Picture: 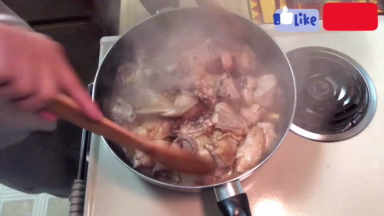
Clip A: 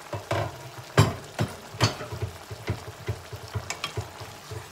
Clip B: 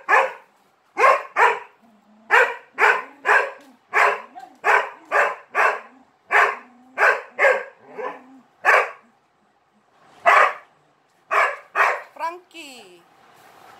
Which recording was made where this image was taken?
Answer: A